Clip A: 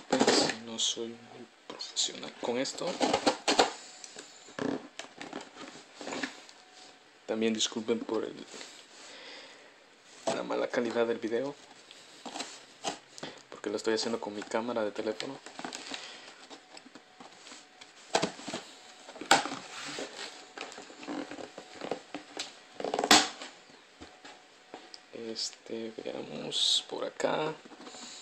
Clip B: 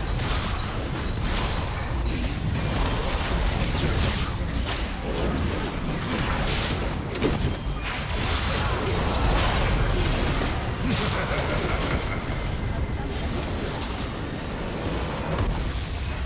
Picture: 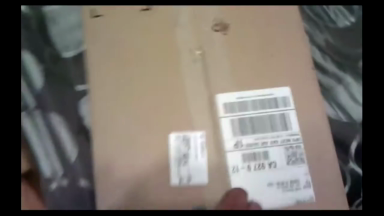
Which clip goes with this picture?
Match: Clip A